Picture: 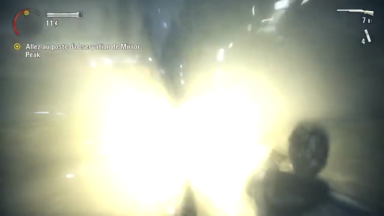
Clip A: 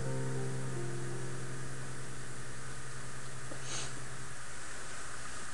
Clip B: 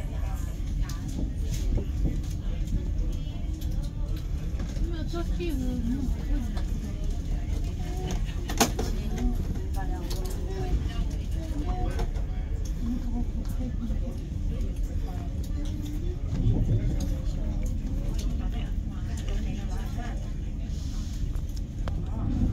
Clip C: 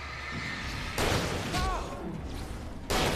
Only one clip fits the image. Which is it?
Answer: C